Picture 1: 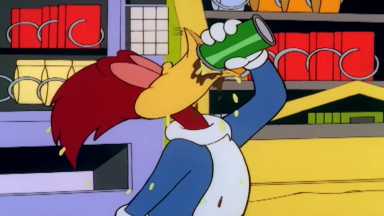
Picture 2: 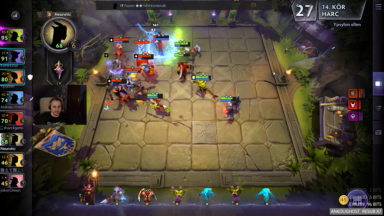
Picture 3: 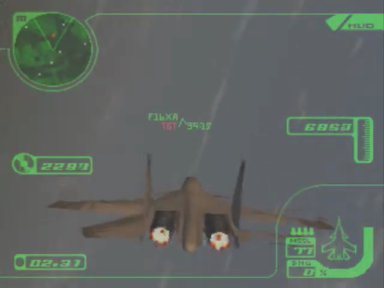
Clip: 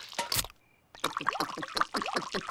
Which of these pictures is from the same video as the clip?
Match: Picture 1